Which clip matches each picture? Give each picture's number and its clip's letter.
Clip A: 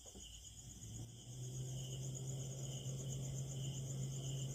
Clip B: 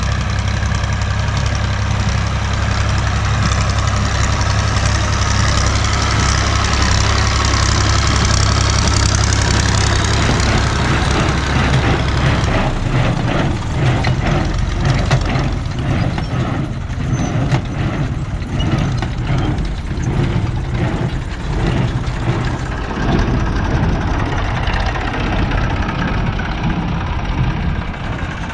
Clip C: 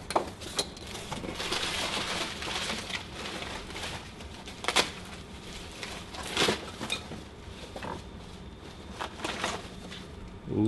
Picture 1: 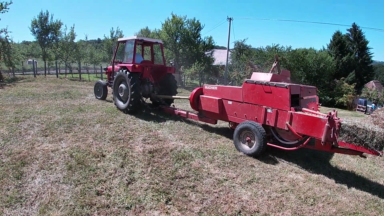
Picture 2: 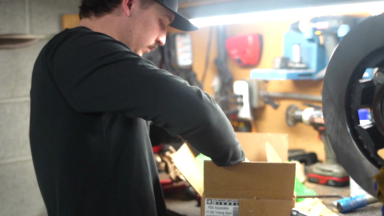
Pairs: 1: B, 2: C